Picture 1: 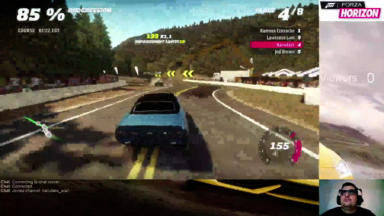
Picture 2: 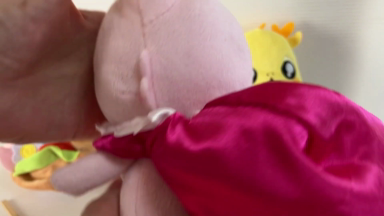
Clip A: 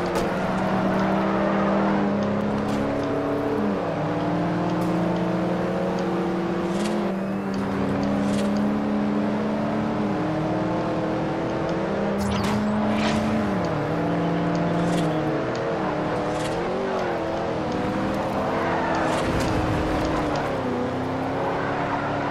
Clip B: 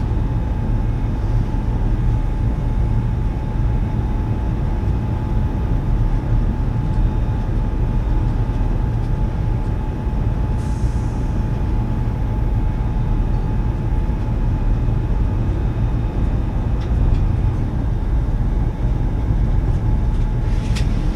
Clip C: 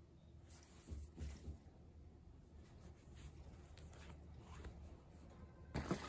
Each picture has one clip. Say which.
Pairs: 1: A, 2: C